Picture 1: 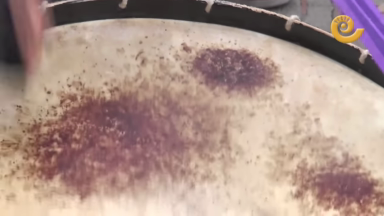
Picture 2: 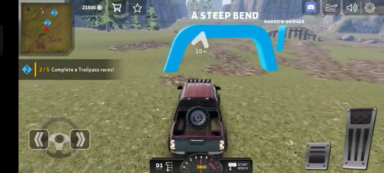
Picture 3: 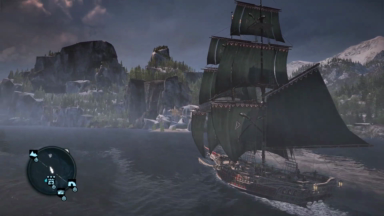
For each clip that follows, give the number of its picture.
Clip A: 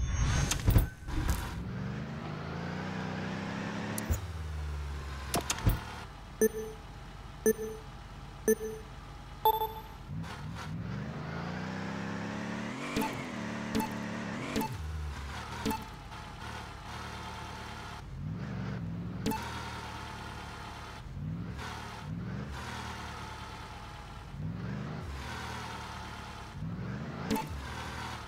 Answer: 2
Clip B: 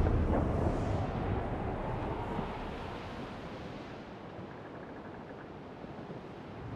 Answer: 3